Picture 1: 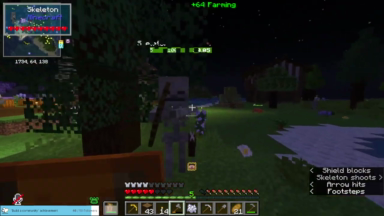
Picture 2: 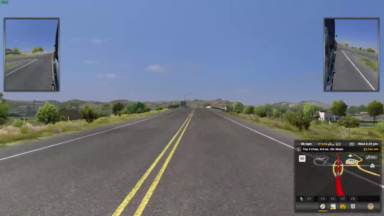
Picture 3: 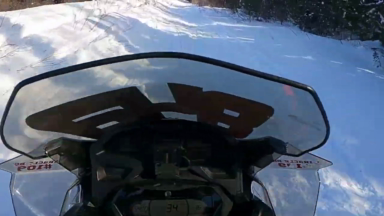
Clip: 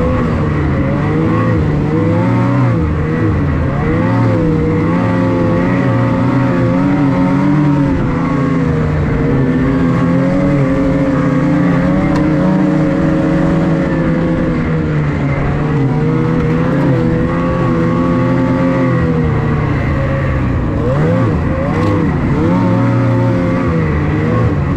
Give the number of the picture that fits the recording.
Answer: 3